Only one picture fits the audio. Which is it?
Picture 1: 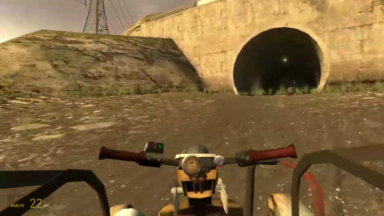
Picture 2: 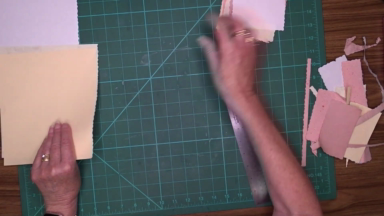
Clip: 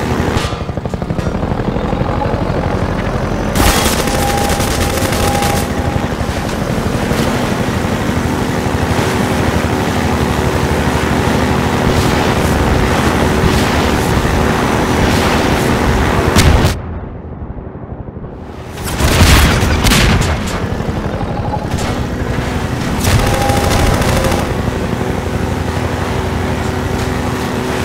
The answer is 1